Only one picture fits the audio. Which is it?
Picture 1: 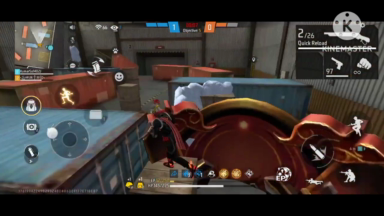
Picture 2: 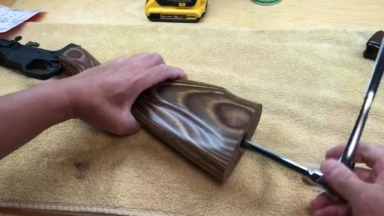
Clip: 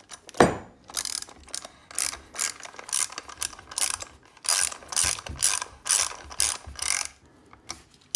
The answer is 2